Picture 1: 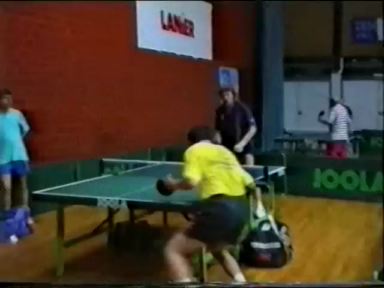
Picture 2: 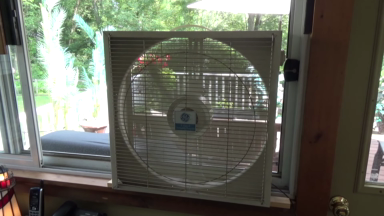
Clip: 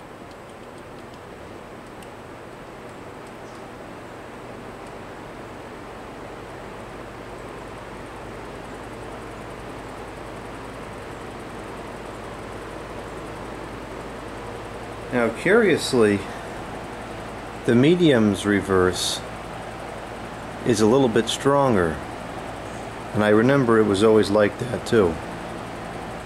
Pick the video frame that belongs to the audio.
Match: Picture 2